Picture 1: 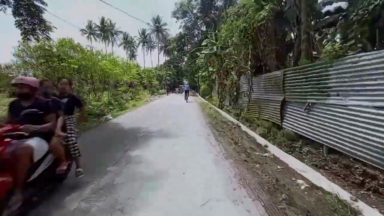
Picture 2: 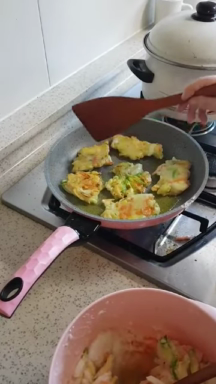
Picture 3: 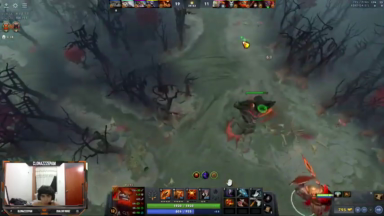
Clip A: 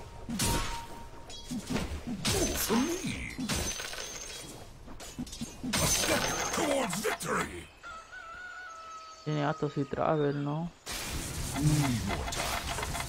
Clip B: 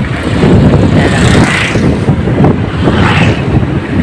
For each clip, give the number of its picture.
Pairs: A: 3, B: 1